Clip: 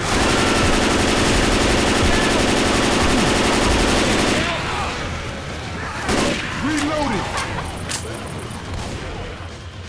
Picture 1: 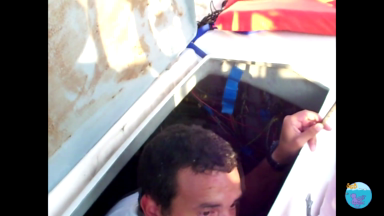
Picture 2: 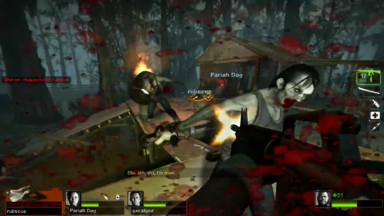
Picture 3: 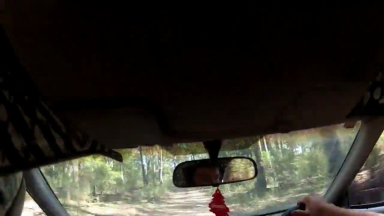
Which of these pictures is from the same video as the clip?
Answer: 2